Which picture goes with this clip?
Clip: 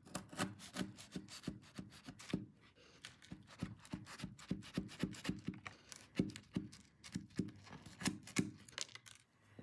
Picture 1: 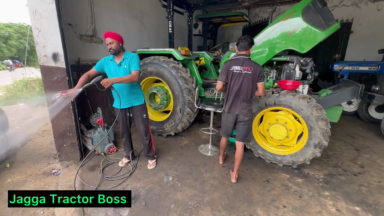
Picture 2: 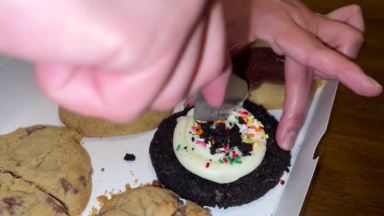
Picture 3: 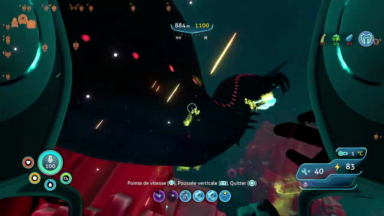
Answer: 2